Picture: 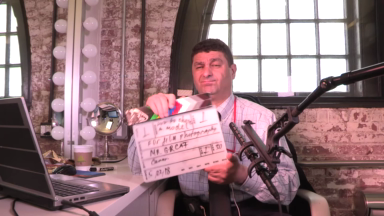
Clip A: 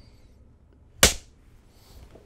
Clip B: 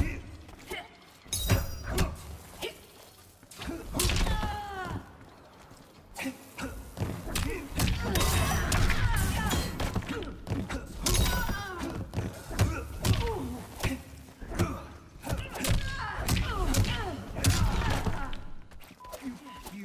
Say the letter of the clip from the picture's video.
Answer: A